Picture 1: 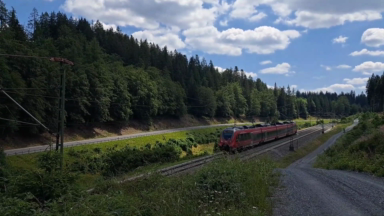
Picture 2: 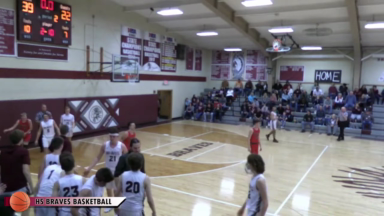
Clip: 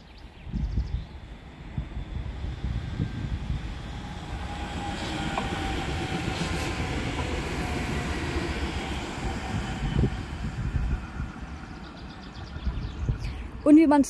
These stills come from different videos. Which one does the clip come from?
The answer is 1